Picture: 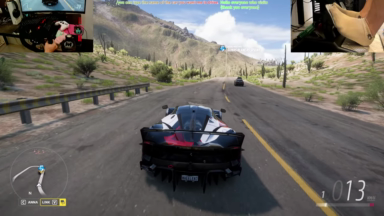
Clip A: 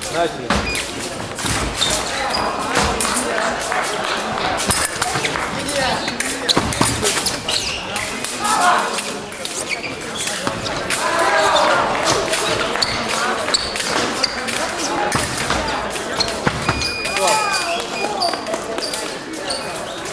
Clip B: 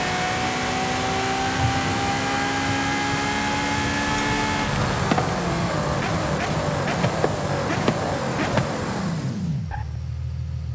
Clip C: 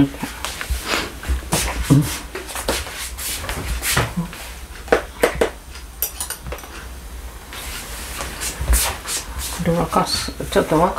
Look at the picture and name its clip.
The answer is B